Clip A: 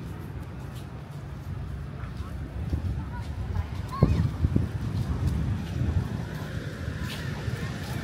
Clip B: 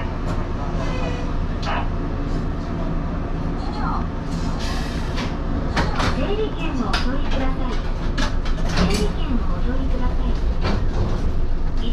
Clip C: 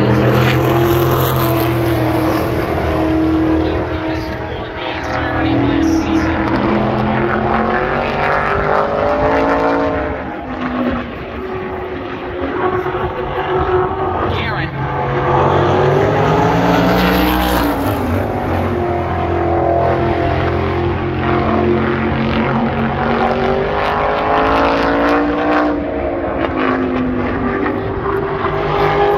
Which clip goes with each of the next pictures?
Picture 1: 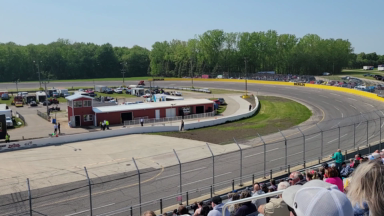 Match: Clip C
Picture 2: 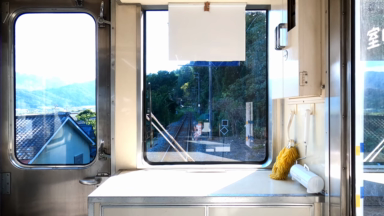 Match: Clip B